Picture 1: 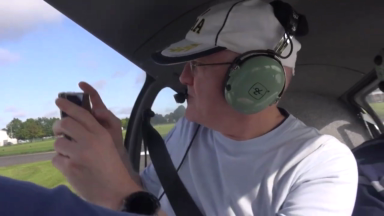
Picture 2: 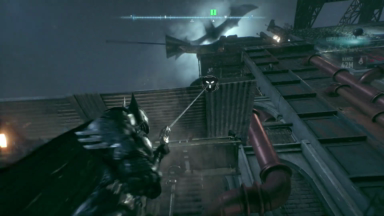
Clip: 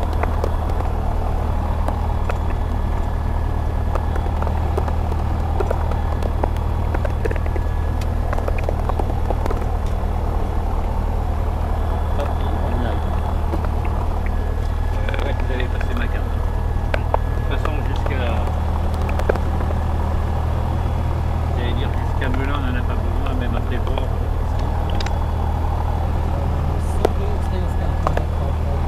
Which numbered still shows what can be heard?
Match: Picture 1